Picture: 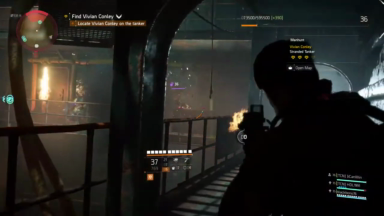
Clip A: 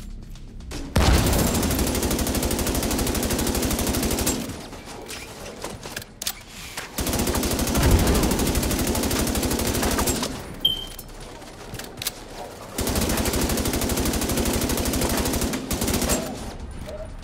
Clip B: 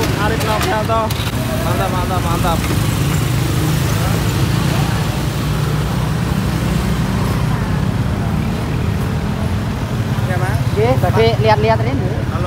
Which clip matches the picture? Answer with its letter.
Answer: A